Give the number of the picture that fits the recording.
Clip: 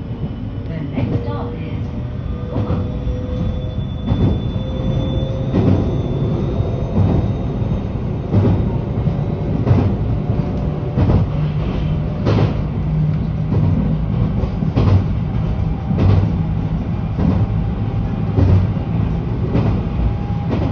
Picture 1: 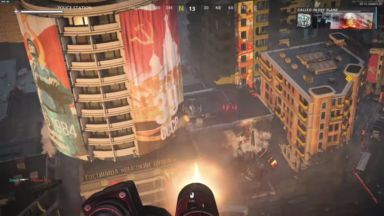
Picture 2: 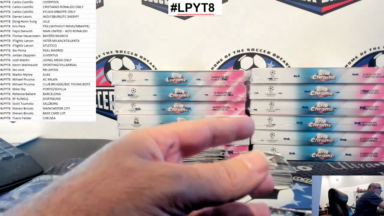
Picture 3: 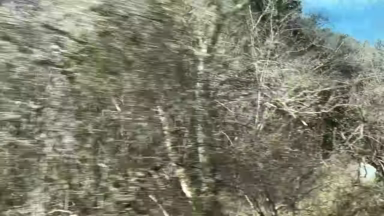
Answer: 3